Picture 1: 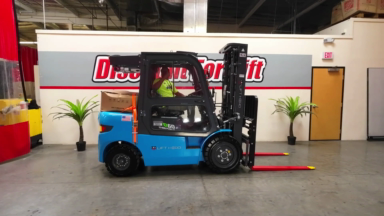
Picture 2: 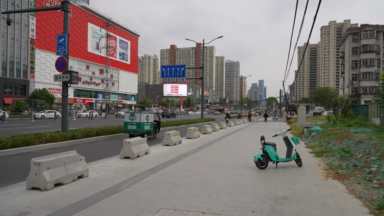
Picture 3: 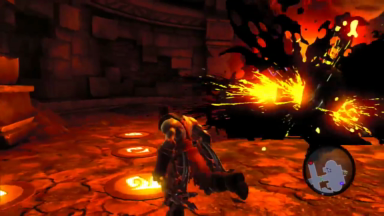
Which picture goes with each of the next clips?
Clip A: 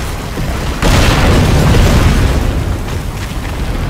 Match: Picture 3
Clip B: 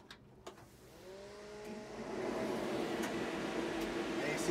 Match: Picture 1